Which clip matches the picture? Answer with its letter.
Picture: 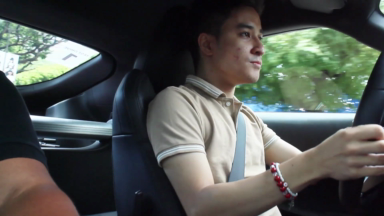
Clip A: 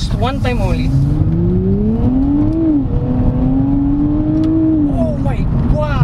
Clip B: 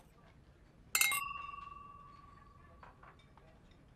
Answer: A